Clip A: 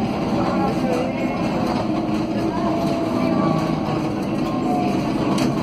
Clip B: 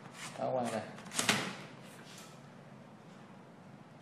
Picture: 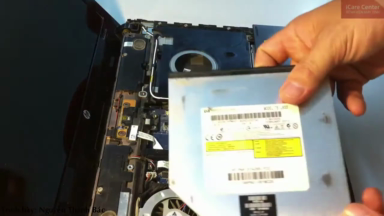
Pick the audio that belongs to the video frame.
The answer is B